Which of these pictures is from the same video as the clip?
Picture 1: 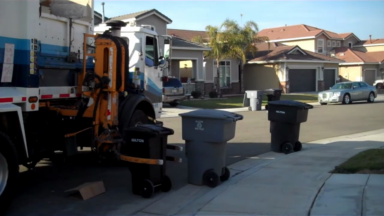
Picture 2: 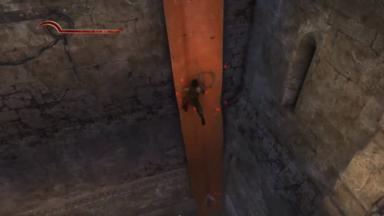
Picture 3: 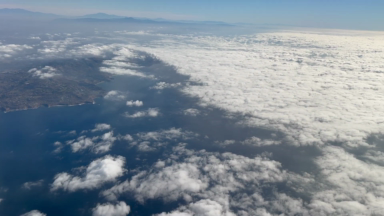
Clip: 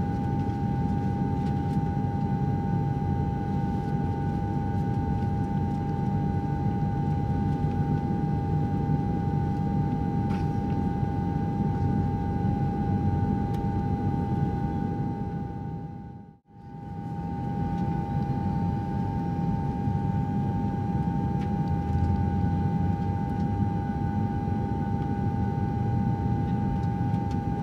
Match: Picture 3